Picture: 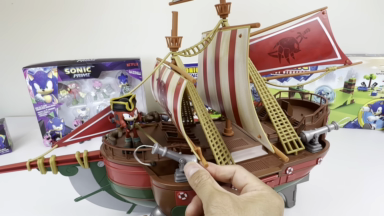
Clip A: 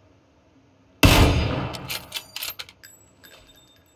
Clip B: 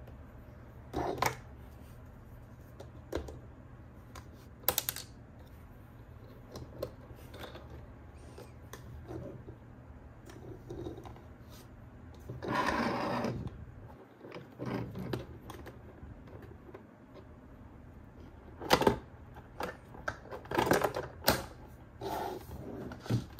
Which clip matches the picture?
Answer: B